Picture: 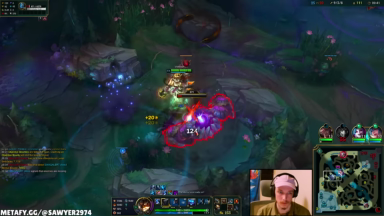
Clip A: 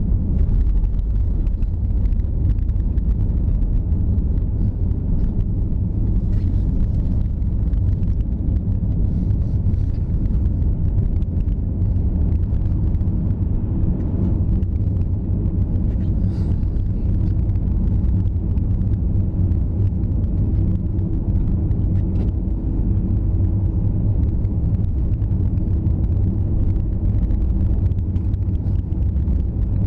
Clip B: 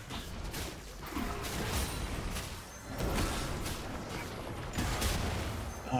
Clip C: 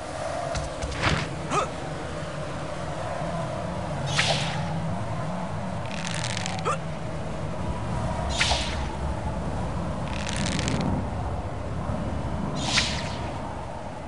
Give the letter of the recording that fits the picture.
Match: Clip B